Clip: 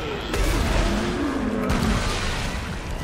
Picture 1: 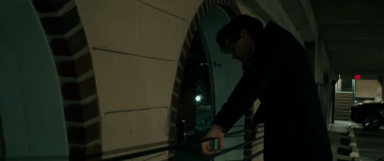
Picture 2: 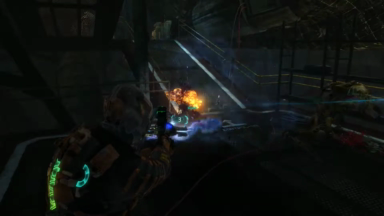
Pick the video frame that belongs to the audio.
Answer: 2